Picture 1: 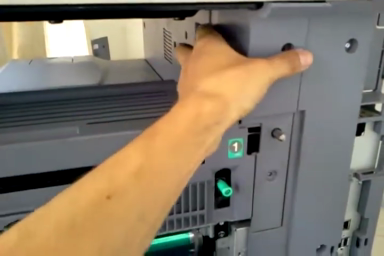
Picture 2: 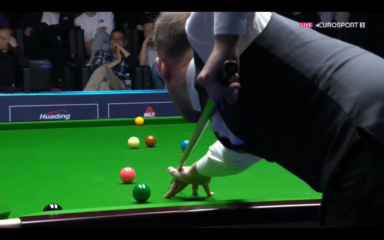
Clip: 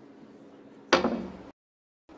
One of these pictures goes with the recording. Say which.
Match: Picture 2